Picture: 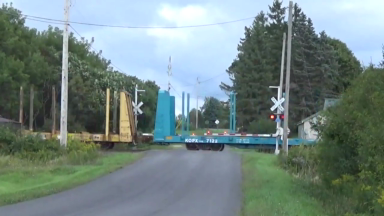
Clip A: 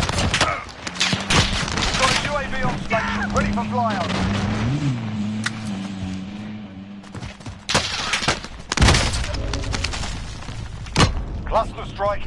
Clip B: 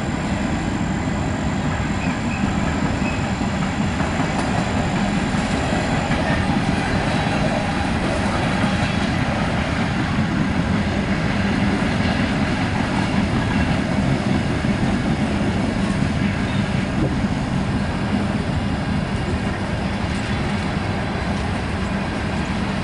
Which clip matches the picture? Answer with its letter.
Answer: B